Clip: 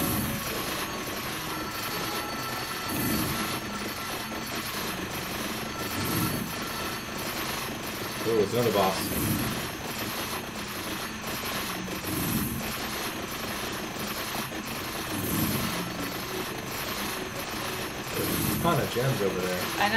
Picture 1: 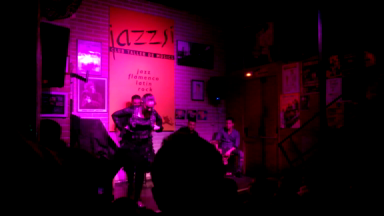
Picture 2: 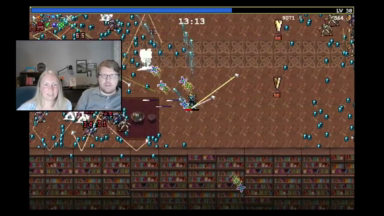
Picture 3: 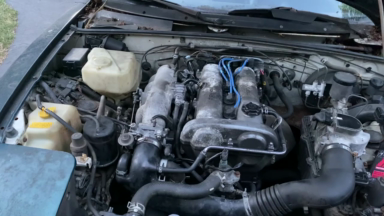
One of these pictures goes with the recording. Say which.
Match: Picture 2